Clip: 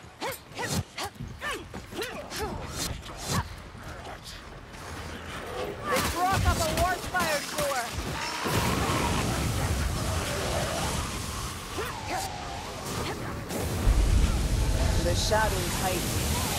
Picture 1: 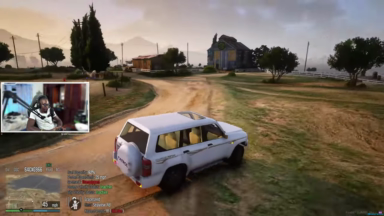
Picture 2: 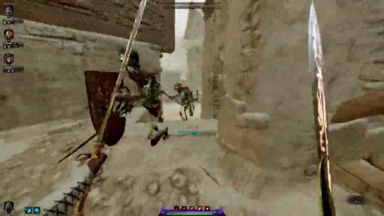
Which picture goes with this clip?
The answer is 2